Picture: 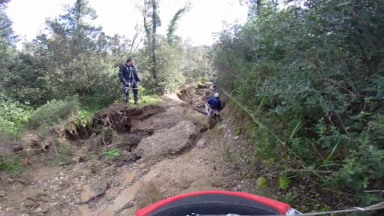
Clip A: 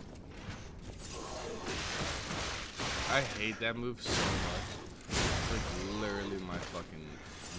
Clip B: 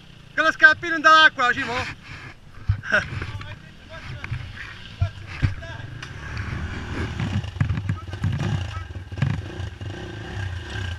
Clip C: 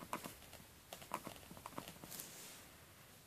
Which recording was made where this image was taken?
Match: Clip B